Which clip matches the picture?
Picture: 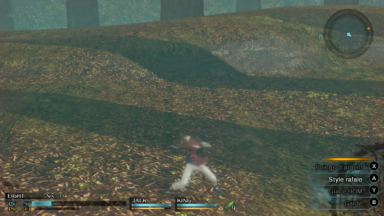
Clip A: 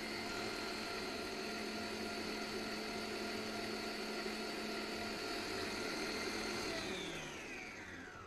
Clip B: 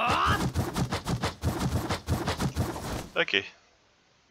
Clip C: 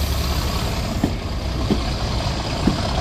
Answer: B